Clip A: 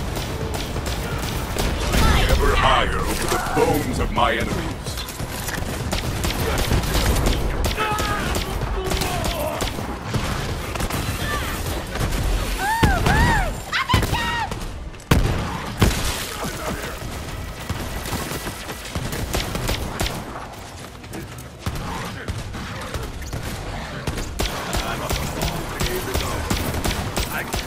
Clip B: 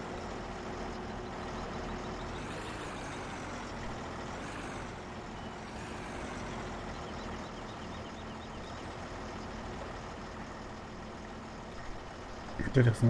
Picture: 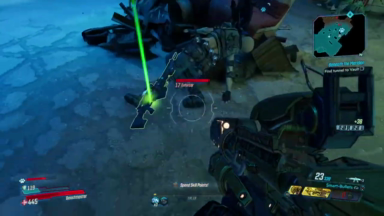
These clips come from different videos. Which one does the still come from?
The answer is A